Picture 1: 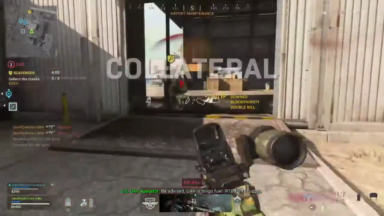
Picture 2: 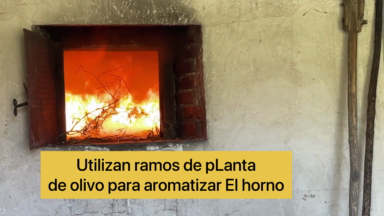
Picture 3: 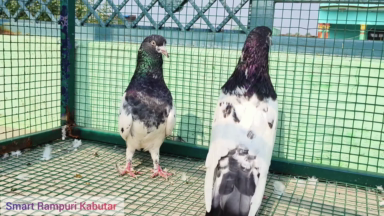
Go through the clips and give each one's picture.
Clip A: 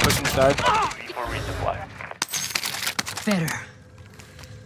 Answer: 1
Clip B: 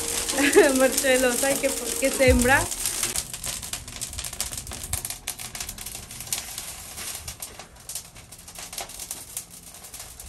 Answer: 2